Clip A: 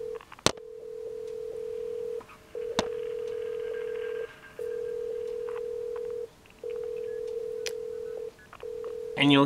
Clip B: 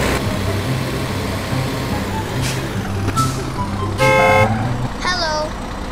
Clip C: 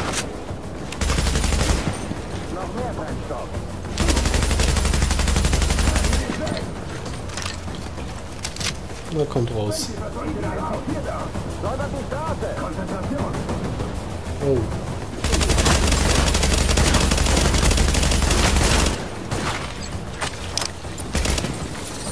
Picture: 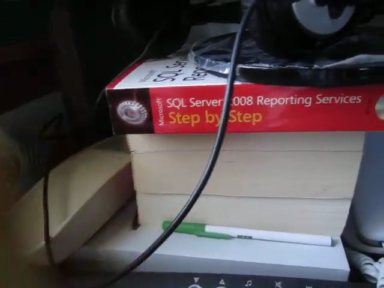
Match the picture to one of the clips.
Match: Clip A